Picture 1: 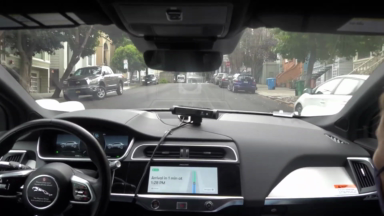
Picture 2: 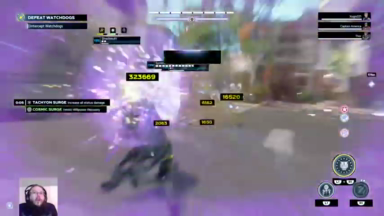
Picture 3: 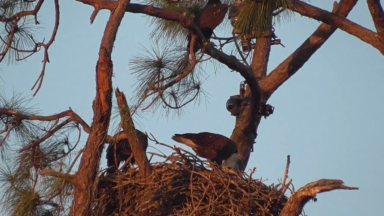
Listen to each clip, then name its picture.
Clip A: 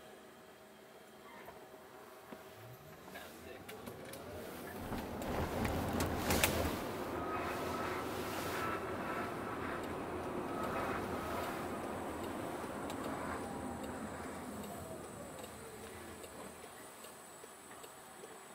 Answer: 1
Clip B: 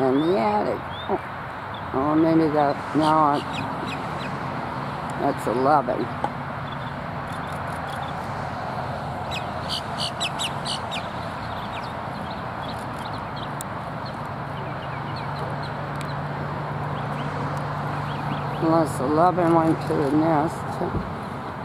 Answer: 3